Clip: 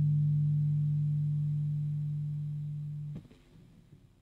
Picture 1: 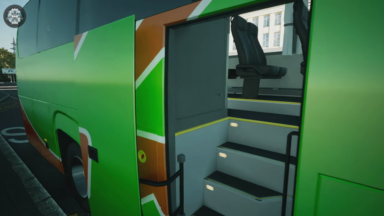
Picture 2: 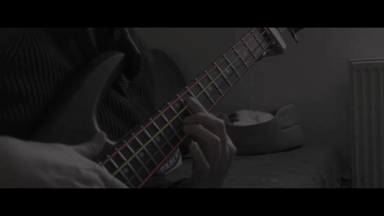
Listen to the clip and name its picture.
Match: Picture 2